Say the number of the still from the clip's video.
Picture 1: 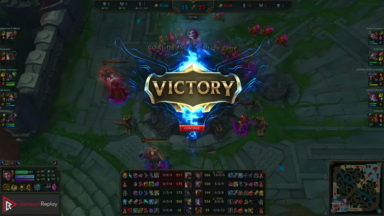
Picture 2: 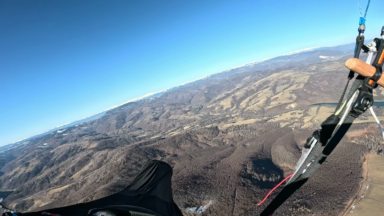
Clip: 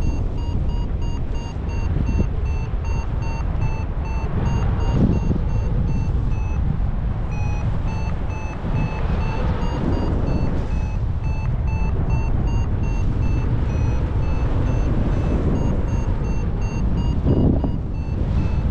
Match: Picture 2